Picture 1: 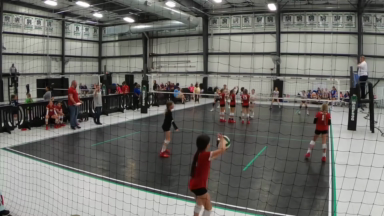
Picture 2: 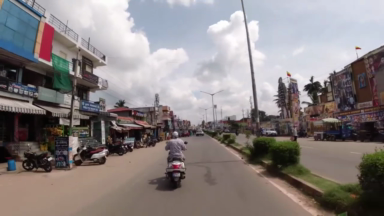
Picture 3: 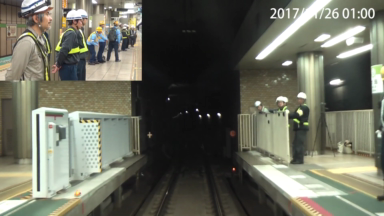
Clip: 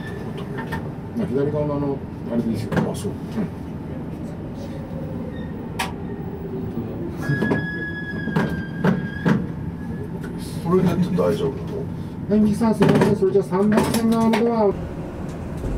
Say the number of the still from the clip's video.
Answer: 3